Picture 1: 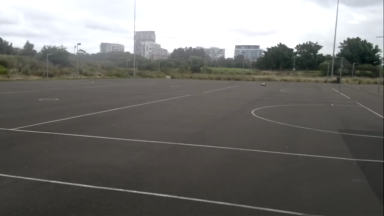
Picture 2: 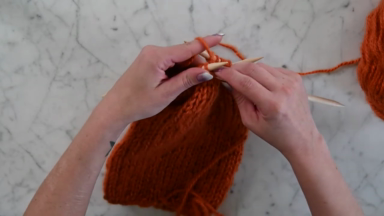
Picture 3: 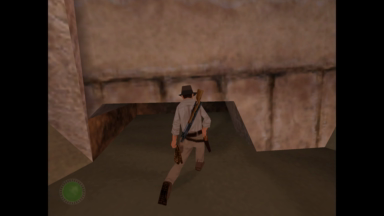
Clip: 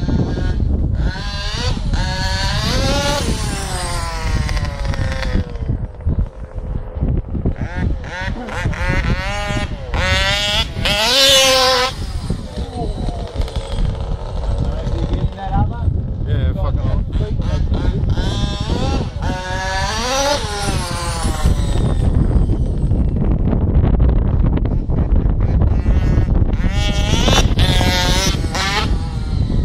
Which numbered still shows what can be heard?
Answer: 1